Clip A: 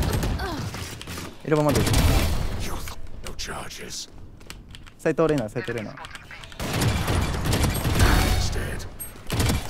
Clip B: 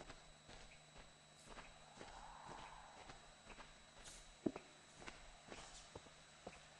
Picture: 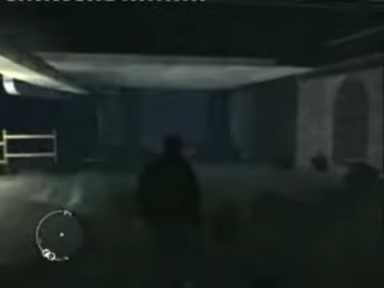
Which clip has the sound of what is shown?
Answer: B